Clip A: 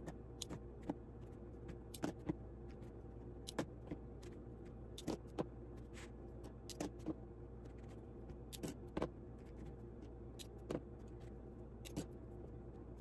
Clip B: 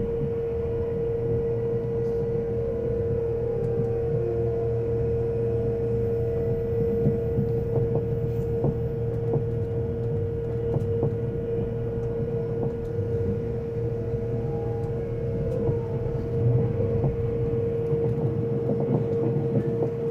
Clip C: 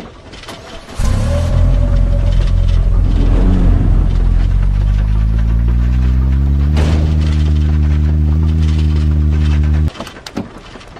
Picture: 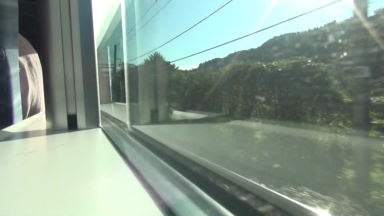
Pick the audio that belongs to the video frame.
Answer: B